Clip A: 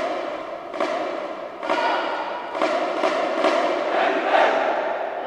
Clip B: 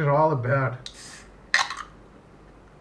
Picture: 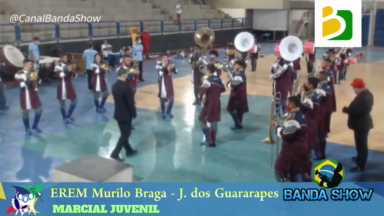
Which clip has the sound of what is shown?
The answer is A